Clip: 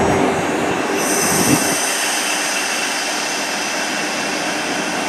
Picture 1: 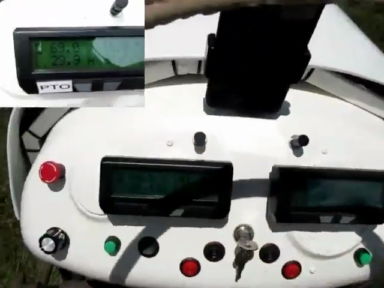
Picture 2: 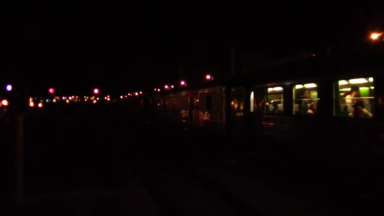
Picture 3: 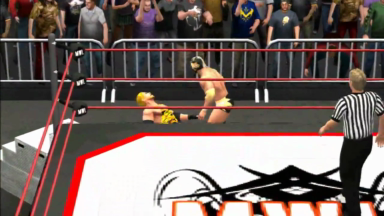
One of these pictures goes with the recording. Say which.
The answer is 2